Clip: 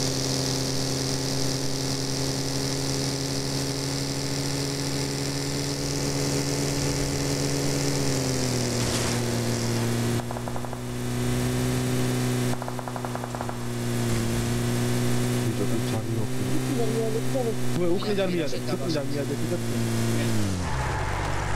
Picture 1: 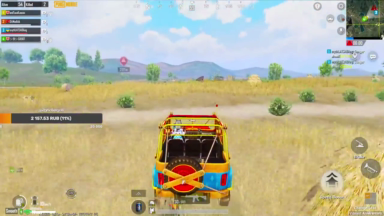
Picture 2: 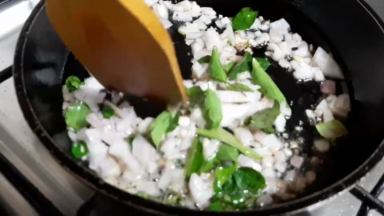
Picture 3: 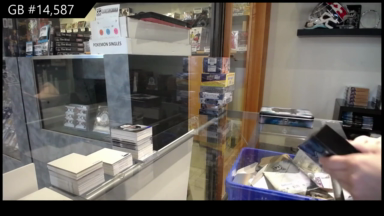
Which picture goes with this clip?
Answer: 1